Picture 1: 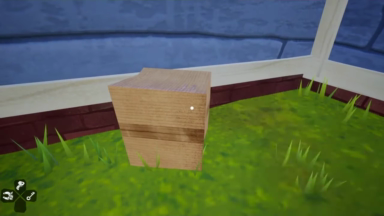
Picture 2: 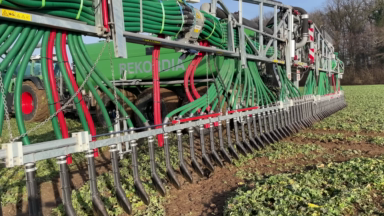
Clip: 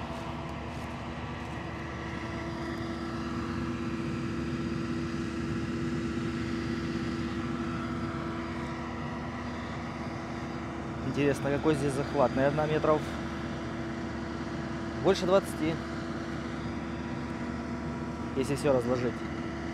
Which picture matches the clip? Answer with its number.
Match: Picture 2